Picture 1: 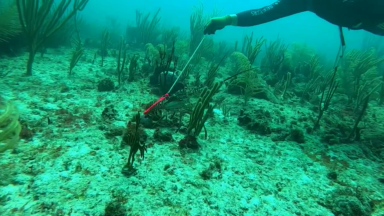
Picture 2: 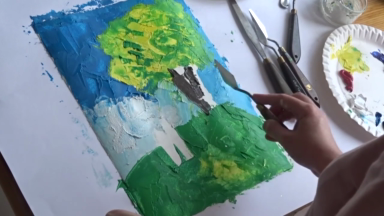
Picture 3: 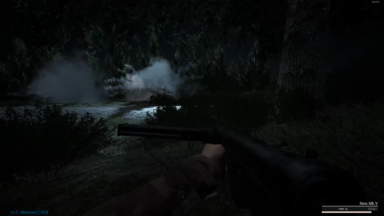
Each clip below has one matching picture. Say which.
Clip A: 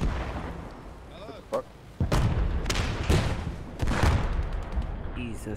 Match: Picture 3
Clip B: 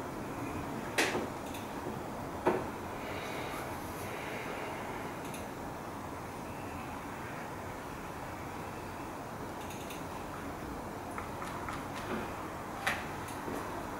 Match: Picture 2